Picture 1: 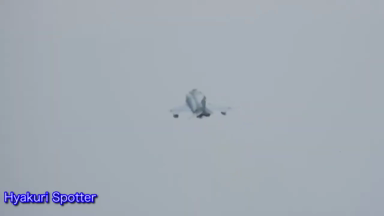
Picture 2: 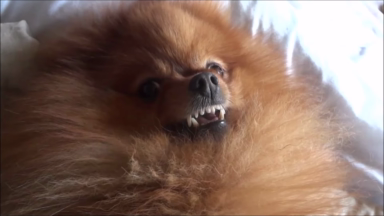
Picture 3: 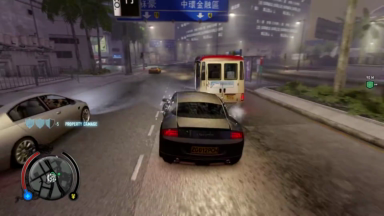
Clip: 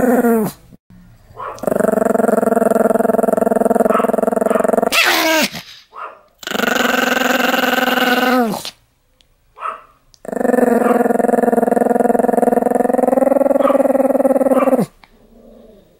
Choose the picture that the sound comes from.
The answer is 2